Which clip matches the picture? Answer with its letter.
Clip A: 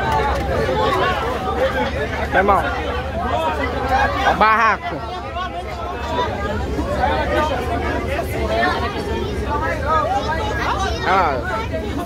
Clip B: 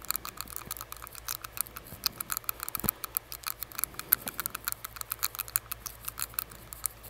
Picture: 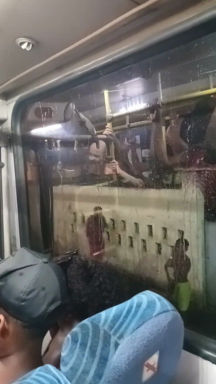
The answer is A